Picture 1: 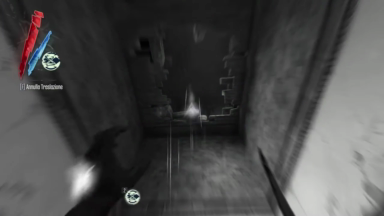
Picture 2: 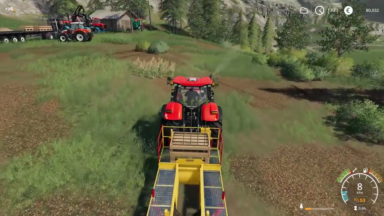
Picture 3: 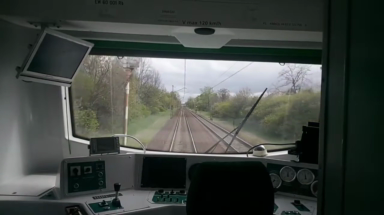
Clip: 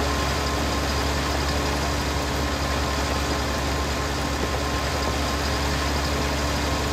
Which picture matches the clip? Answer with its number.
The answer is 2